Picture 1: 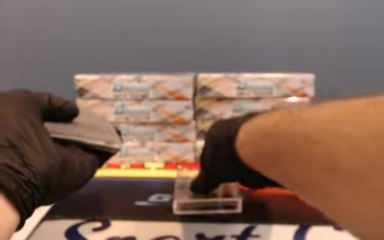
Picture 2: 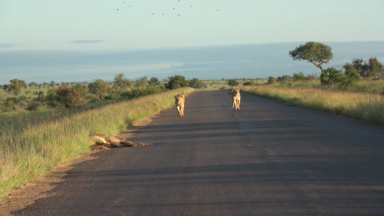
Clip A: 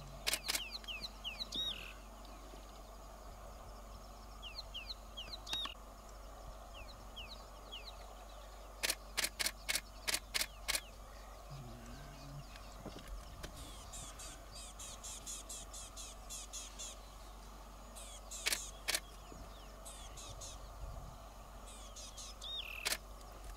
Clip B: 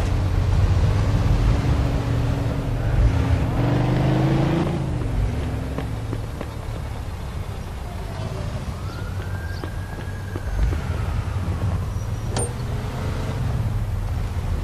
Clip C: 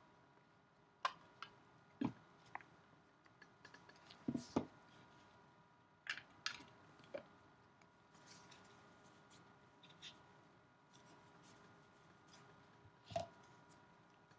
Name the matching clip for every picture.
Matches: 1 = C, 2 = A